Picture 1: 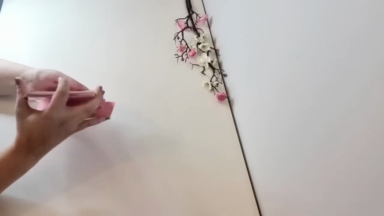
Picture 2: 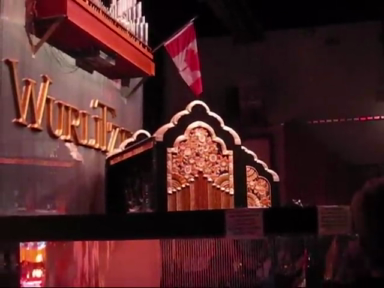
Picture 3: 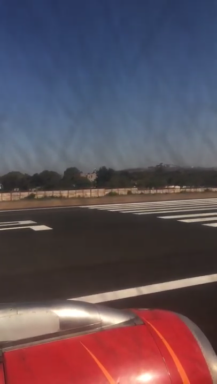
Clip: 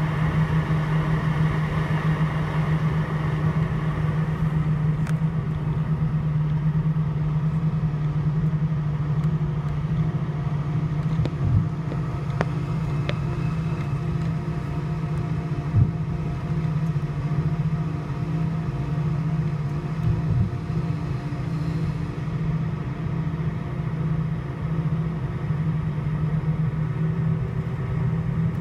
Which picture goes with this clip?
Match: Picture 3